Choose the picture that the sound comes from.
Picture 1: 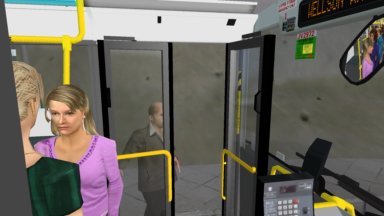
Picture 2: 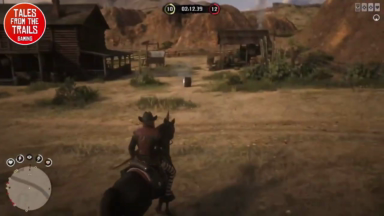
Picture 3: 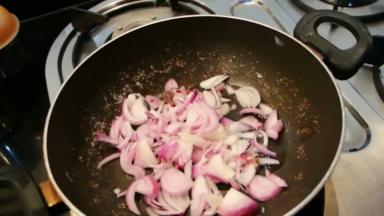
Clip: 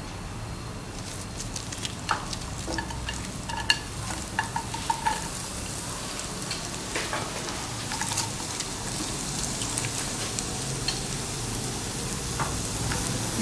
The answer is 3